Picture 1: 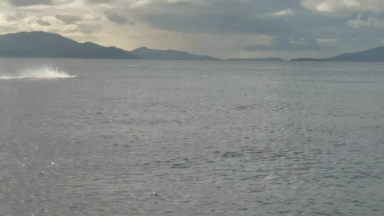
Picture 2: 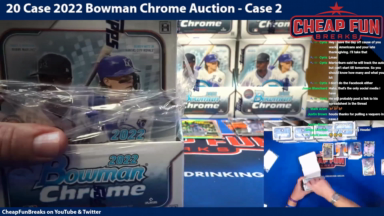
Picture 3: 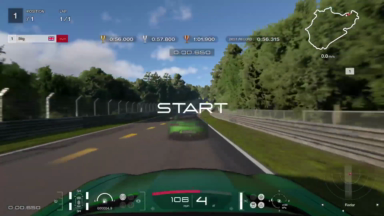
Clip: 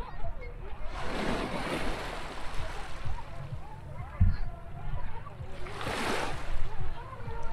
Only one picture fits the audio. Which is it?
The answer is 1